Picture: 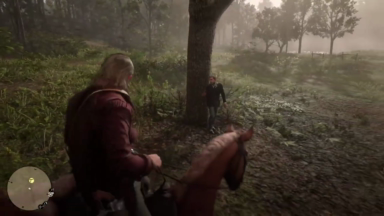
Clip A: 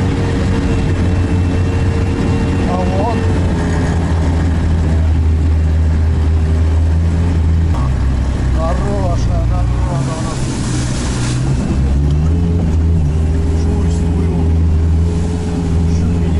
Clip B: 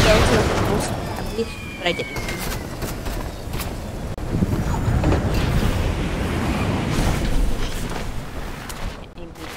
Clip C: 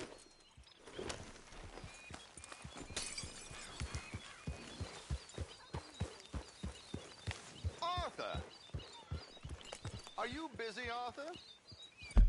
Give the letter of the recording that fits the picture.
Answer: C